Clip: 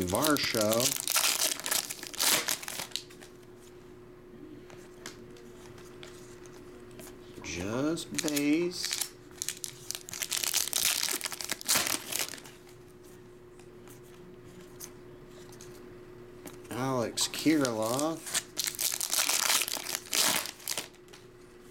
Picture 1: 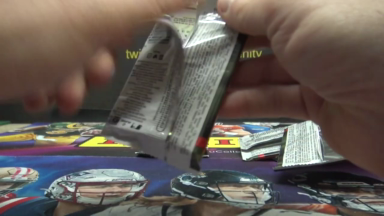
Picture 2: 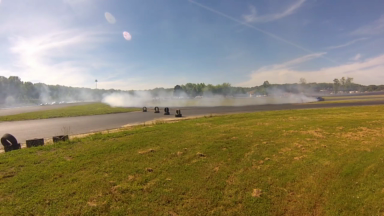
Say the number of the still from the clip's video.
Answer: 1